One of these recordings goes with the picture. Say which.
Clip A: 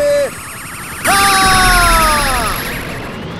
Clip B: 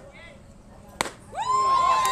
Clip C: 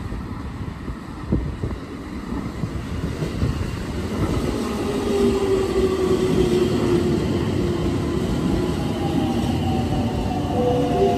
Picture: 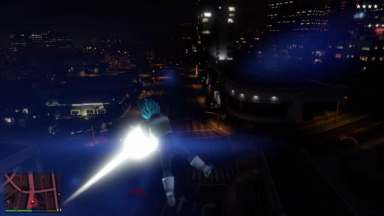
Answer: A